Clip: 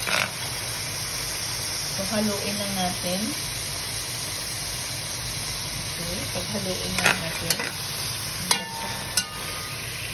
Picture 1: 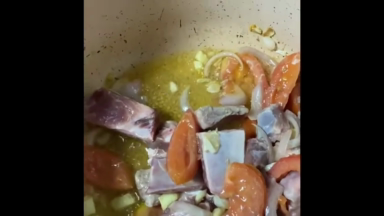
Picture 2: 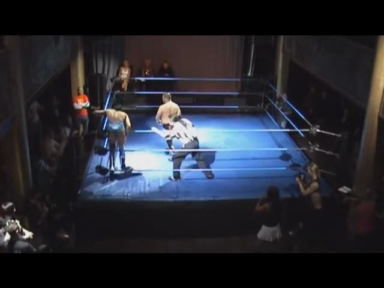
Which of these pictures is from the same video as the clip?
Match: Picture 1